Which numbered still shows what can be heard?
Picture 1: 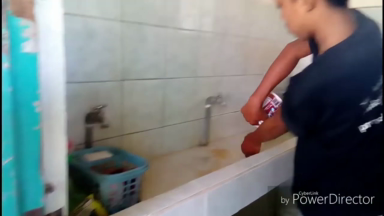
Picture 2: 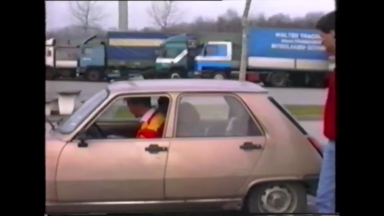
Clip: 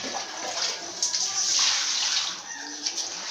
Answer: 1